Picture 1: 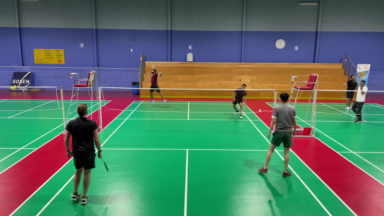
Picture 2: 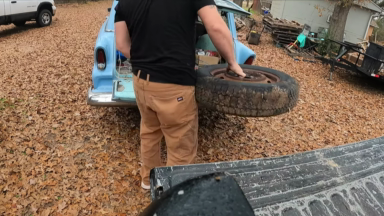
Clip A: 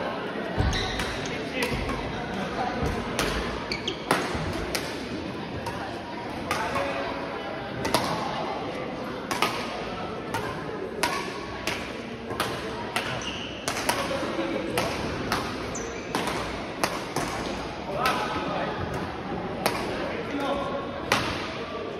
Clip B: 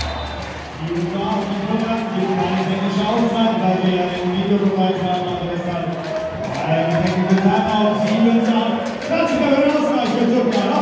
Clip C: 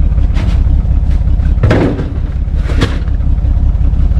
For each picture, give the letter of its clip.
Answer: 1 A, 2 C